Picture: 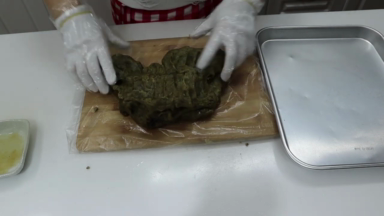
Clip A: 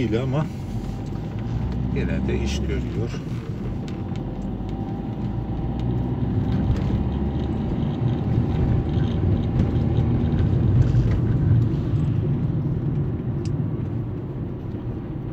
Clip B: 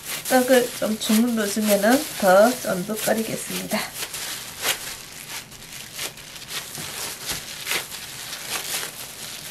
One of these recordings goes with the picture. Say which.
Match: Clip B